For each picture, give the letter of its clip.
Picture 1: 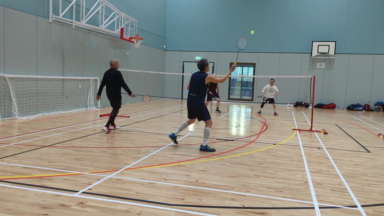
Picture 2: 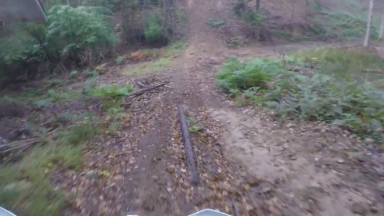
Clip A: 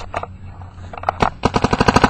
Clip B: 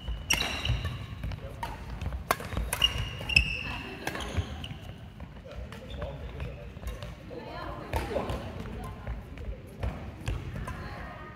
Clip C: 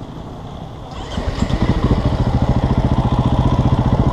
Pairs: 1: B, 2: C